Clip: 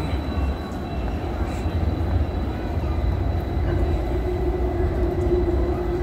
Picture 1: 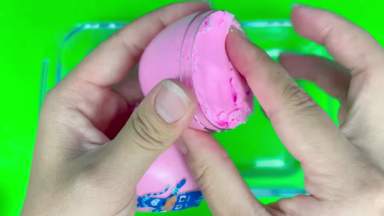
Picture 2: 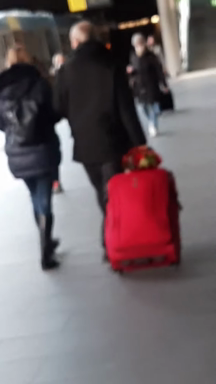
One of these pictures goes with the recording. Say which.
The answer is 2